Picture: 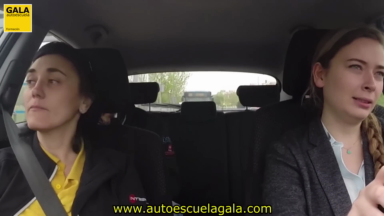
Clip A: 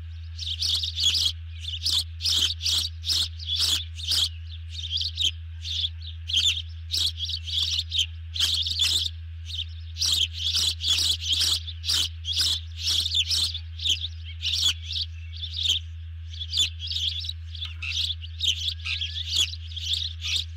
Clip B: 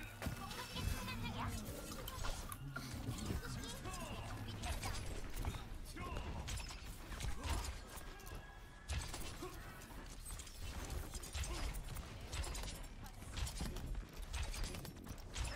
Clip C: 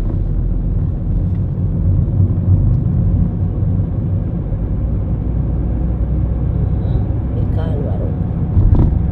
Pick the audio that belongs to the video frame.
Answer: C